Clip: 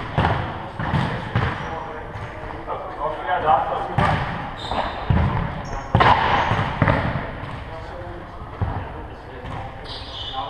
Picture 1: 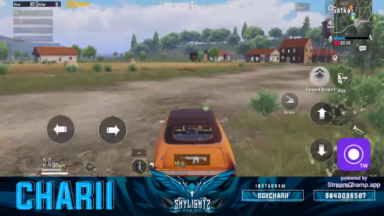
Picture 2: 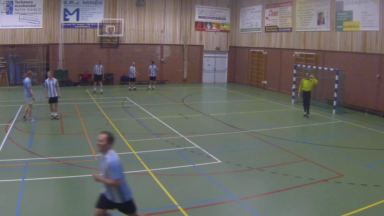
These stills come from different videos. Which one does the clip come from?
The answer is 2